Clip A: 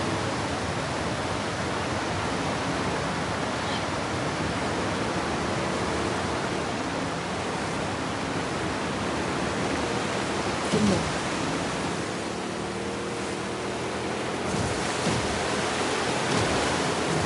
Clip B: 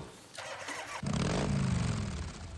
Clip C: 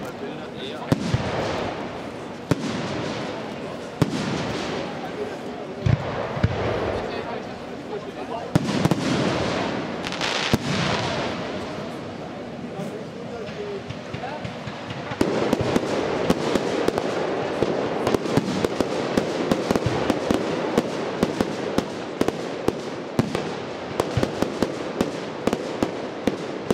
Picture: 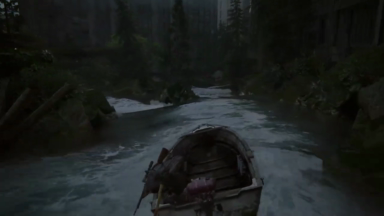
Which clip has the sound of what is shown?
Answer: A